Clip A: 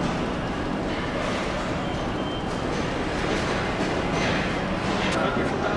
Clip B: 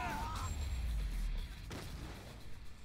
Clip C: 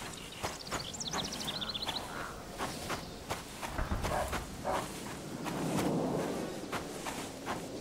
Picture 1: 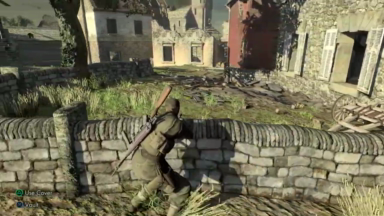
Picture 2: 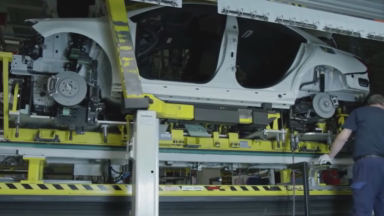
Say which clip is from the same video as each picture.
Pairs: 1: C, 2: A